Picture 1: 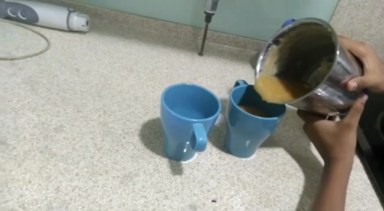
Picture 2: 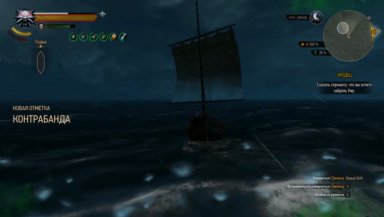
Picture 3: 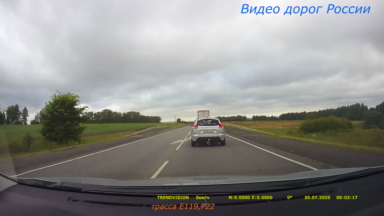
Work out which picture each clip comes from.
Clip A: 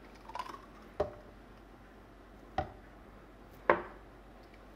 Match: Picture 1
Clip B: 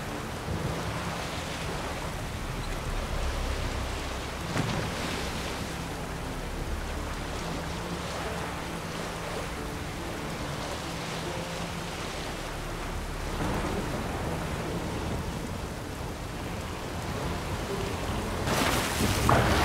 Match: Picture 2